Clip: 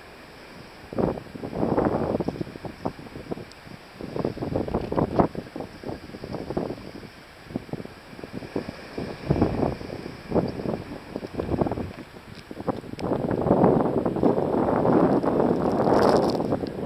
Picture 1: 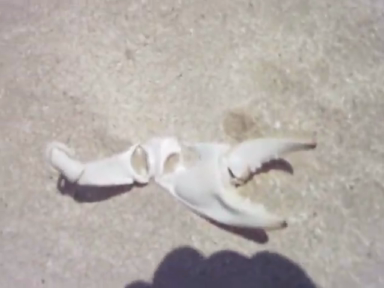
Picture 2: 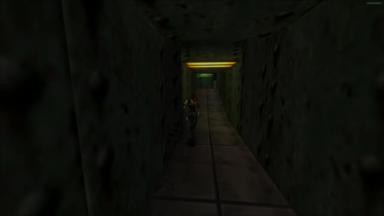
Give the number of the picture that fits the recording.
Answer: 1